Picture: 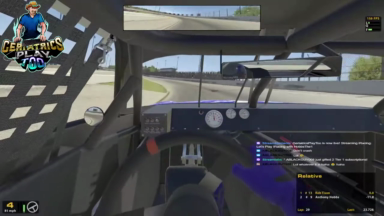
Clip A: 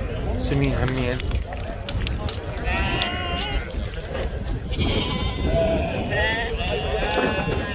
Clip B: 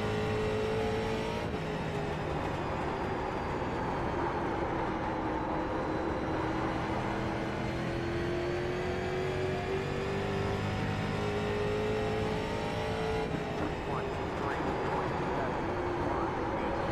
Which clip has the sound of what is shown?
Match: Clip B